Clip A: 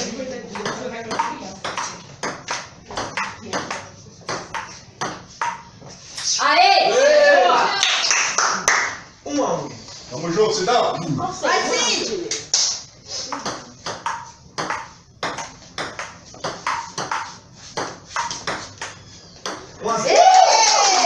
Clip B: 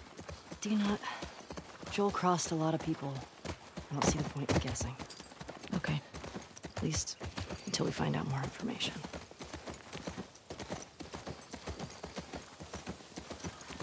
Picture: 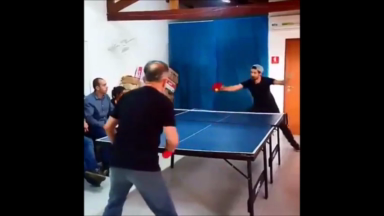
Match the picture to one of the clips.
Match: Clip A